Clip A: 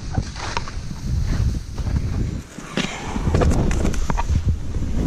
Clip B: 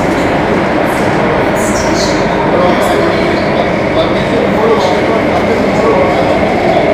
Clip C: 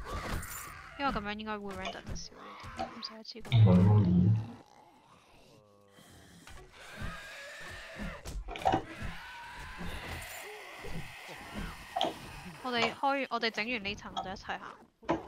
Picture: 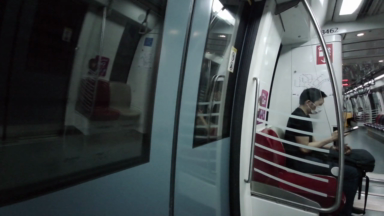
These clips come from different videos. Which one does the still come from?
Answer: B